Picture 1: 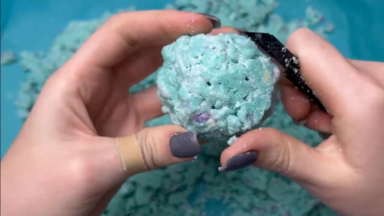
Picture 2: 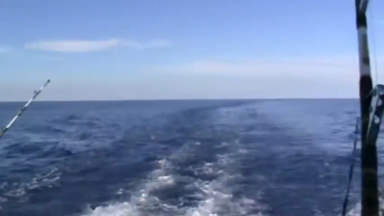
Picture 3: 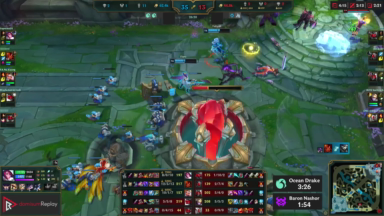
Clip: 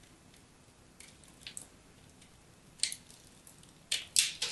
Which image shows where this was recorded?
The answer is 1